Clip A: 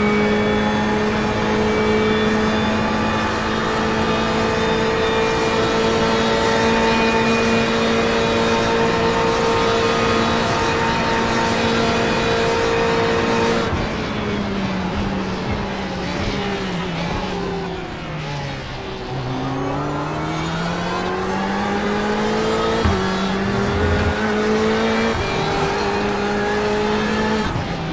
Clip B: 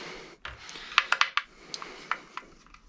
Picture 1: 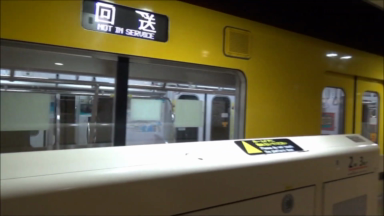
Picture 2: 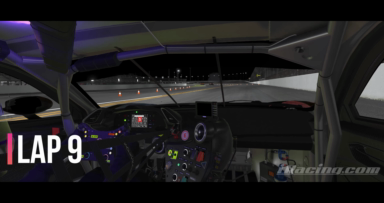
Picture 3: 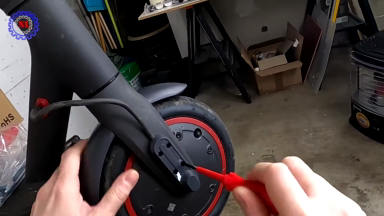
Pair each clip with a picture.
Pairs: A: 2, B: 3